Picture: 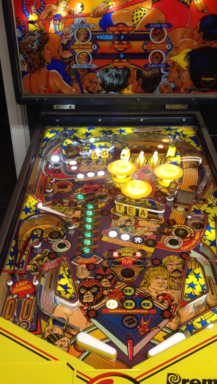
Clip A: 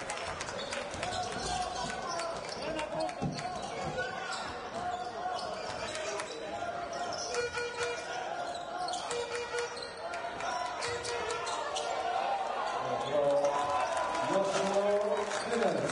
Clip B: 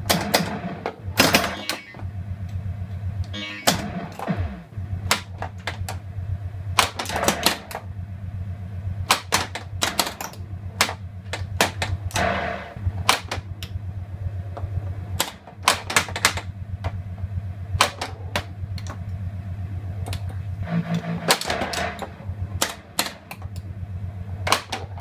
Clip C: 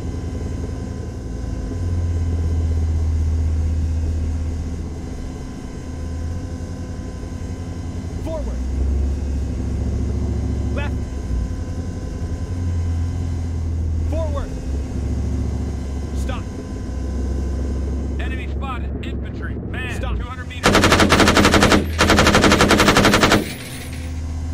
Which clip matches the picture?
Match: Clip B